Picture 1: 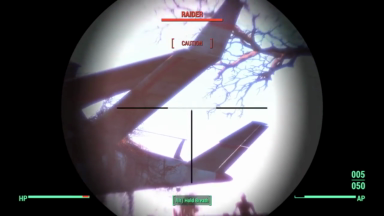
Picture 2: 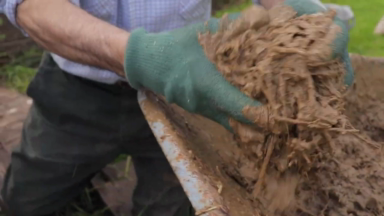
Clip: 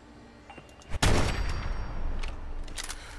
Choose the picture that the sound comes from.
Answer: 1